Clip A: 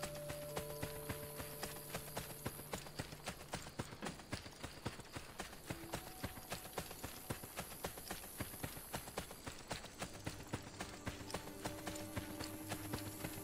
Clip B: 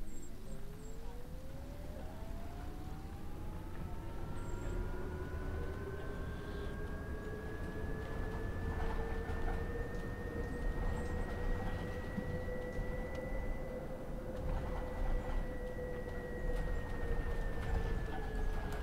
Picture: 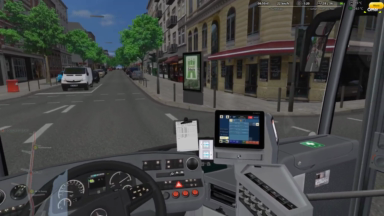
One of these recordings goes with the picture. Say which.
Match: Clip B